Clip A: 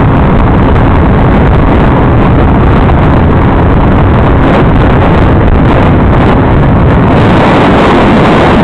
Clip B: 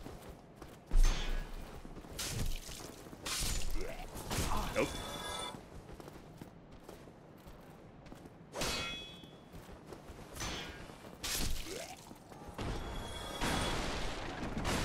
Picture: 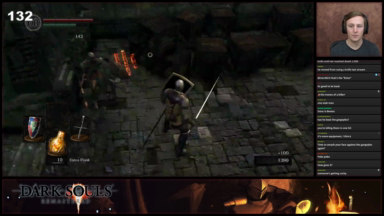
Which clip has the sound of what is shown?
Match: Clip B